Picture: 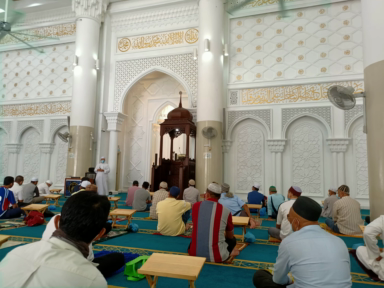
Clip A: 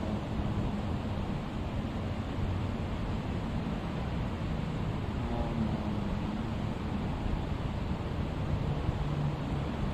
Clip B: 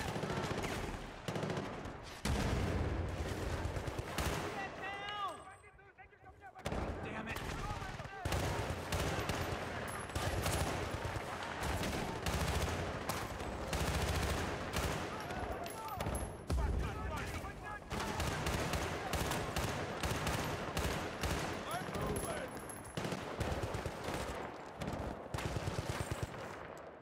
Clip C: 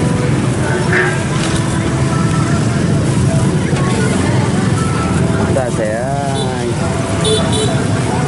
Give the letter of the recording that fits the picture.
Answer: A